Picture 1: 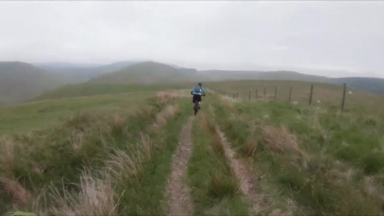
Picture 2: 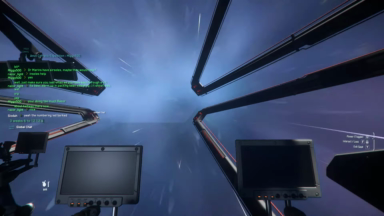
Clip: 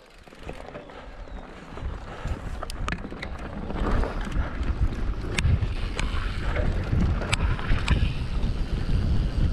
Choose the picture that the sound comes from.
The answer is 1